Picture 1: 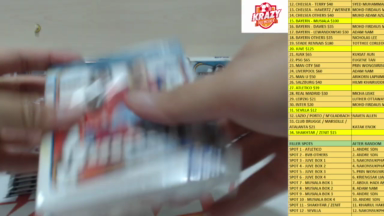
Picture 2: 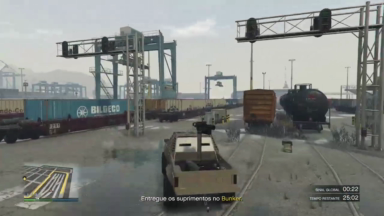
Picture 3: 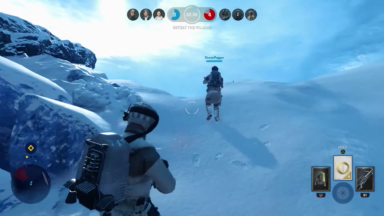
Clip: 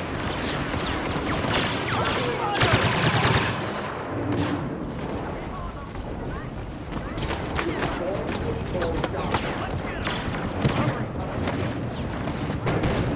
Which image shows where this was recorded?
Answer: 3